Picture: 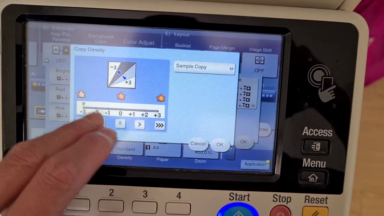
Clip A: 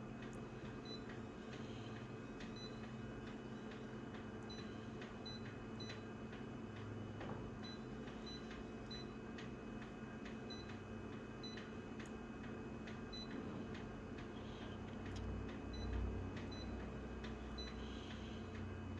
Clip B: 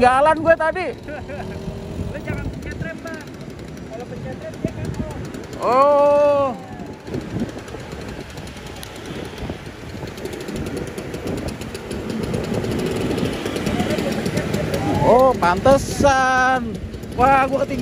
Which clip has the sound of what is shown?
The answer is A